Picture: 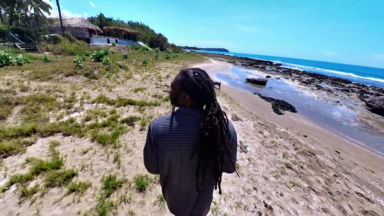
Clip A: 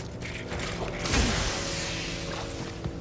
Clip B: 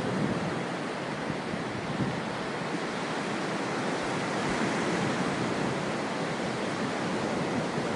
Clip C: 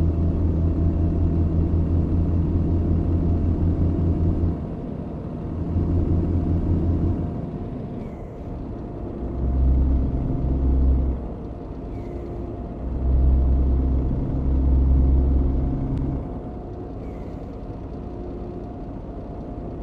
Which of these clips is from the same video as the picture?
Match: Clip B